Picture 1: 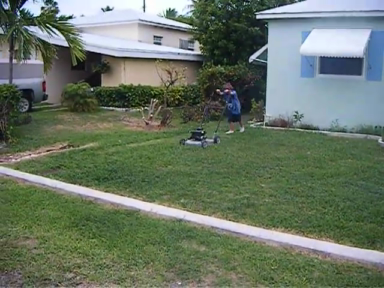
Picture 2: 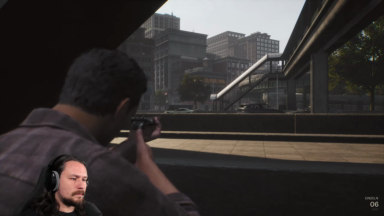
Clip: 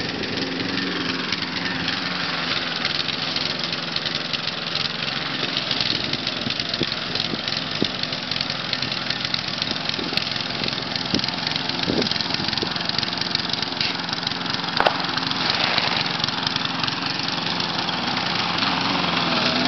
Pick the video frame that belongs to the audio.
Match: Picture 1